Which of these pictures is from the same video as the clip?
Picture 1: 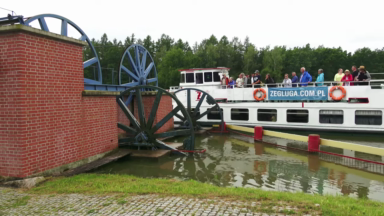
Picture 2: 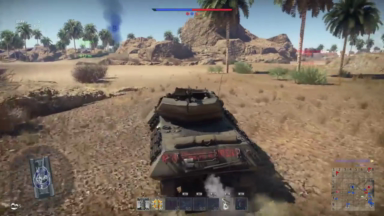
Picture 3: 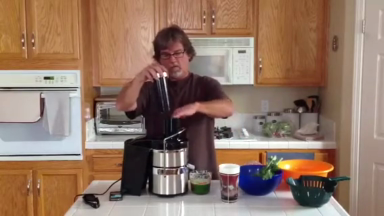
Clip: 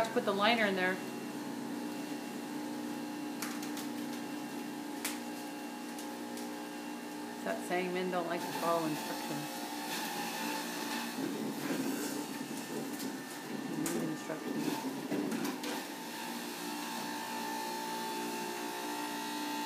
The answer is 3